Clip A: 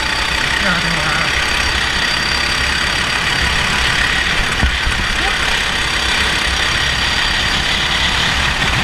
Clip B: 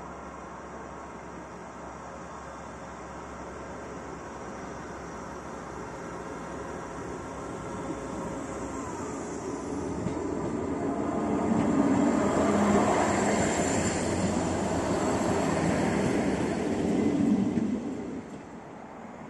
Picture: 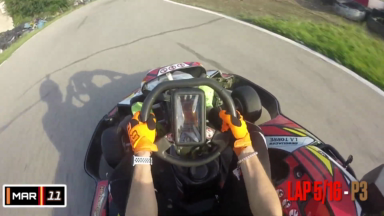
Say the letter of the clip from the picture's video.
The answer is A